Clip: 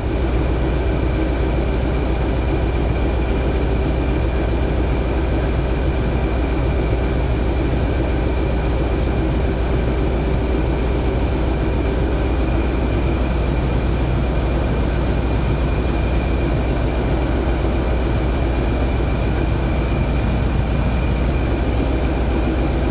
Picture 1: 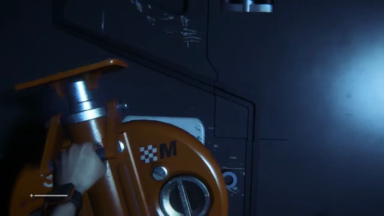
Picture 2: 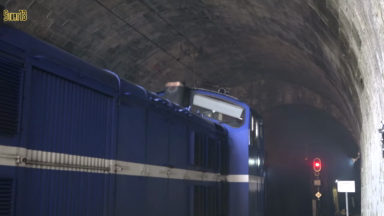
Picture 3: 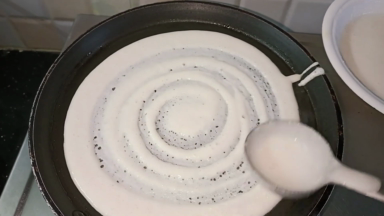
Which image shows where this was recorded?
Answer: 2